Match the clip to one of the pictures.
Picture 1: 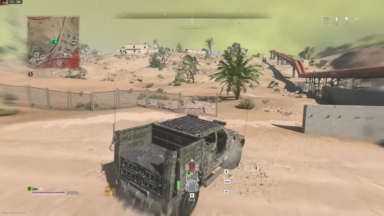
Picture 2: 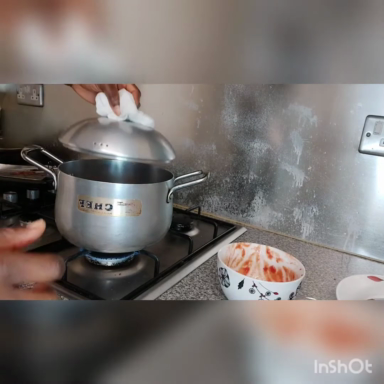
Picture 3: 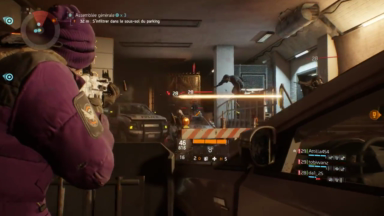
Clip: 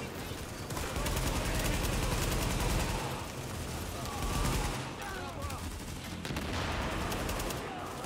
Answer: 3